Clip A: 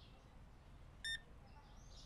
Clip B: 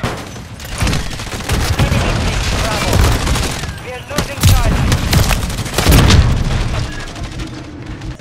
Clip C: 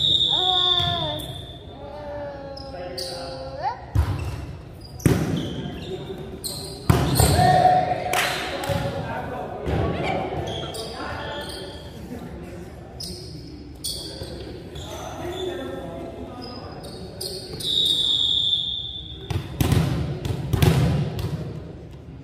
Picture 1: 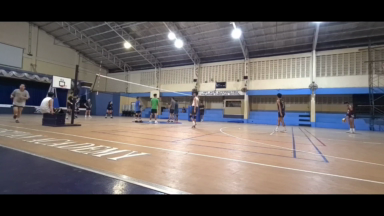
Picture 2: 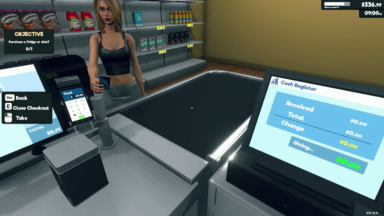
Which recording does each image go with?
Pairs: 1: C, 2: A